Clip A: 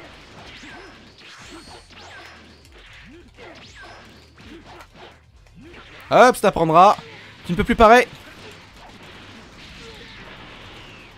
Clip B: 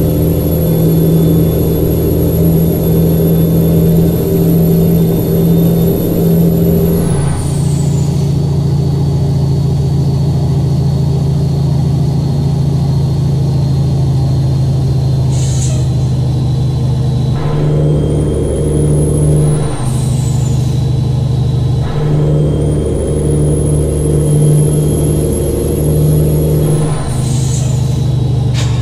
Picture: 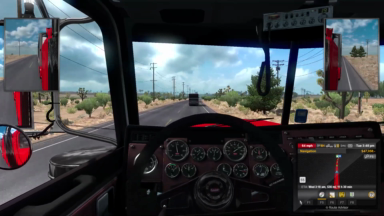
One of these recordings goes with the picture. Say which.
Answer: B